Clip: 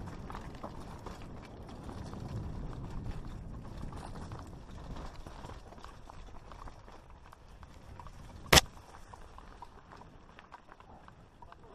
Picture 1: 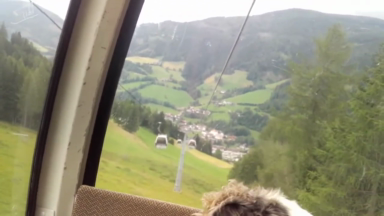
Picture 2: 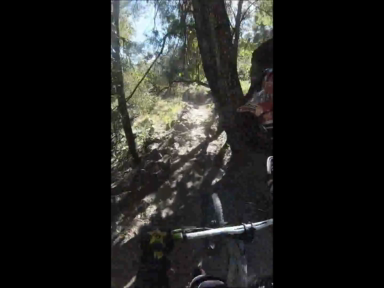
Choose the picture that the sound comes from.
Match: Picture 2